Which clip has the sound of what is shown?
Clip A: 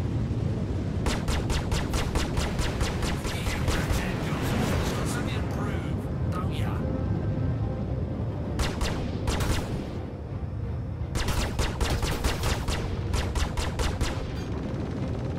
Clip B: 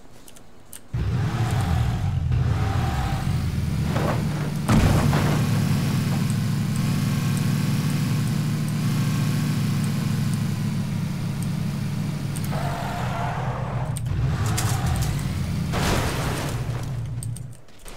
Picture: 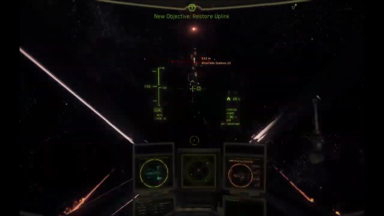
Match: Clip A